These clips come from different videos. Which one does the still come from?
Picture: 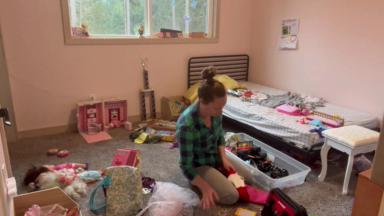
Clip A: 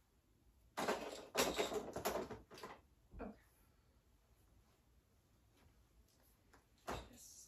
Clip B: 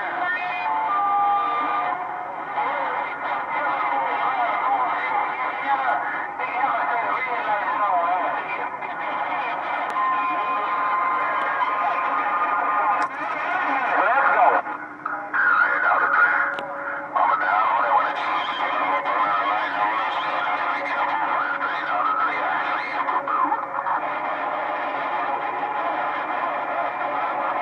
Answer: A